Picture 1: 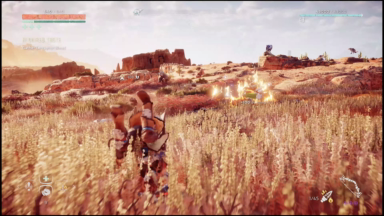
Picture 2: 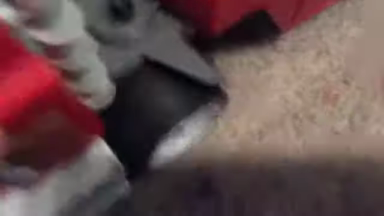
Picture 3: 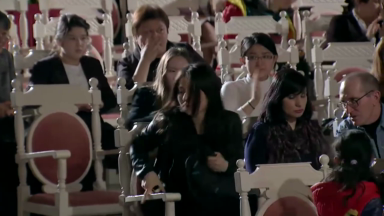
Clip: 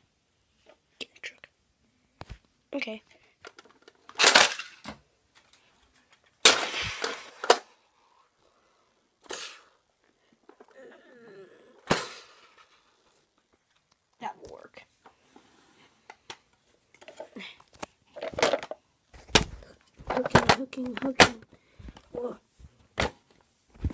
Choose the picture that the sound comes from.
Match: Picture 2